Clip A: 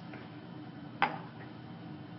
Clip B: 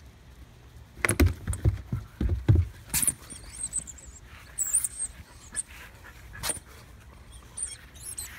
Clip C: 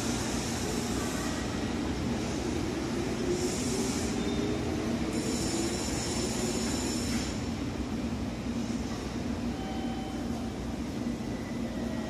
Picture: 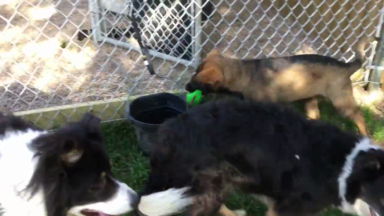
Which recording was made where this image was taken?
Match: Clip B